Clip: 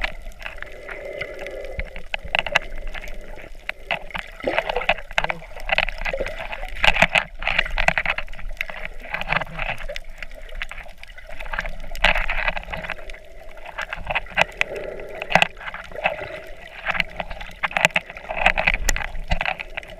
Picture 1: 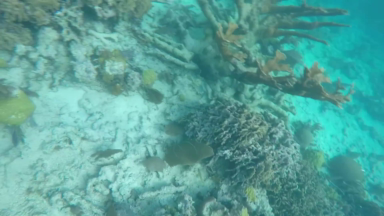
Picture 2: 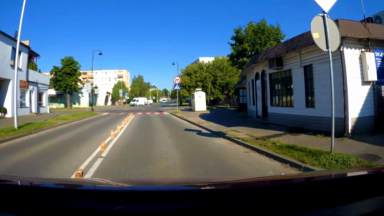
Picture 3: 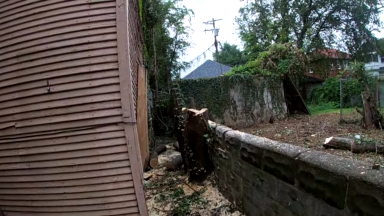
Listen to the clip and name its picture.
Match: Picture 1